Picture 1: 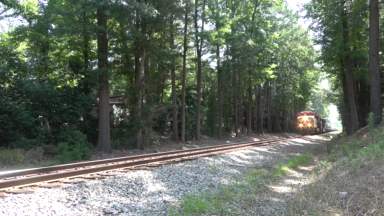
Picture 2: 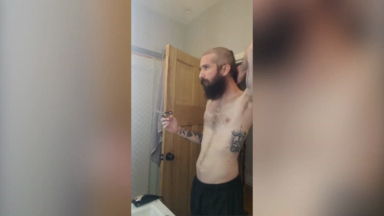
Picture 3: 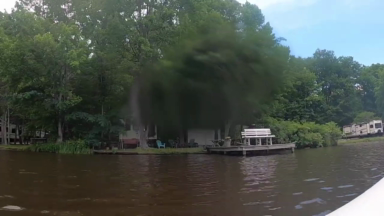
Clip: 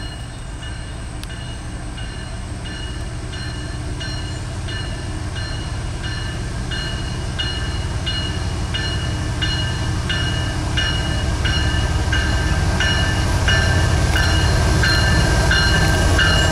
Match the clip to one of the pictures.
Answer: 1